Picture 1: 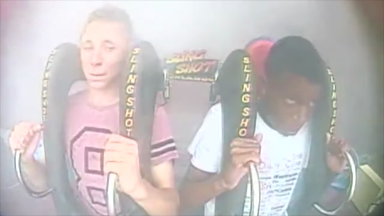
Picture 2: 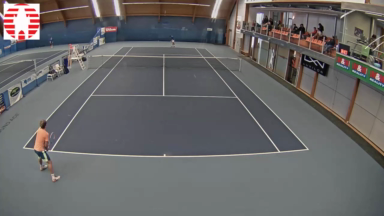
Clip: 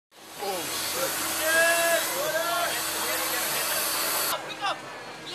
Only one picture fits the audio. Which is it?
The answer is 1